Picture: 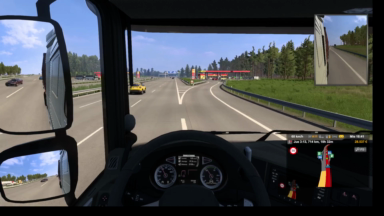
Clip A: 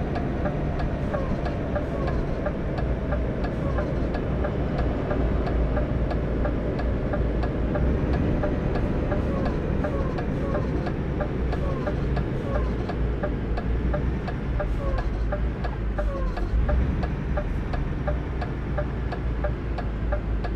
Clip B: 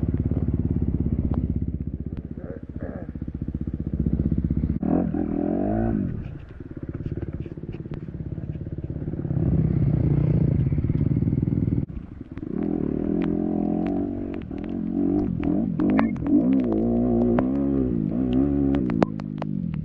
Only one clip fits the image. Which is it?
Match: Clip A